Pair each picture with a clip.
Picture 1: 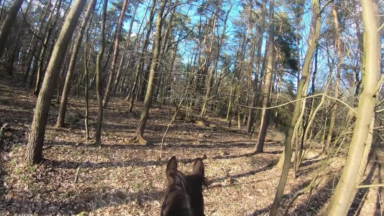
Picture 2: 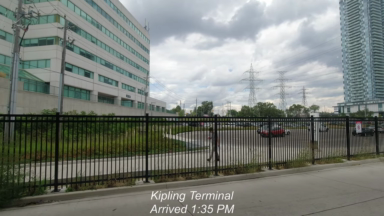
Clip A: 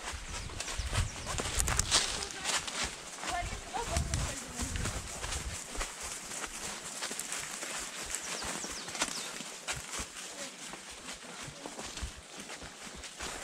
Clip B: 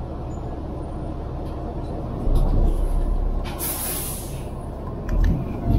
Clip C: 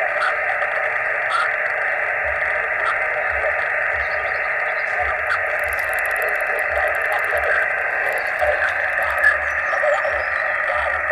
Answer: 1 A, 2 B